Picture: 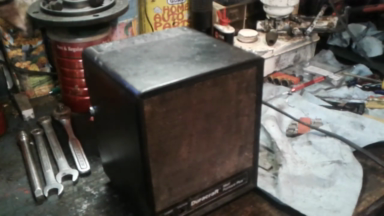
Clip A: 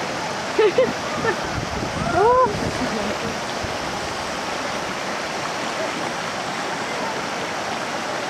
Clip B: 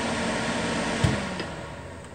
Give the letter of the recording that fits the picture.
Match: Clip B